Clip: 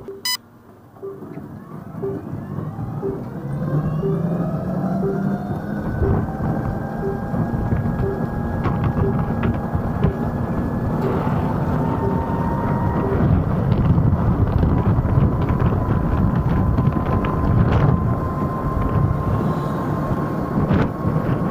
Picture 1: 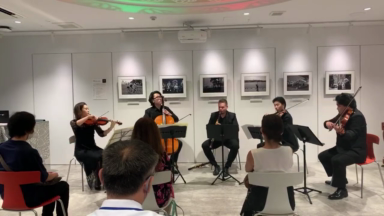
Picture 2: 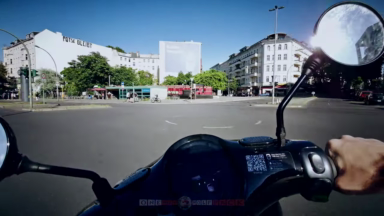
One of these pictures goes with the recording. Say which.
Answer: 2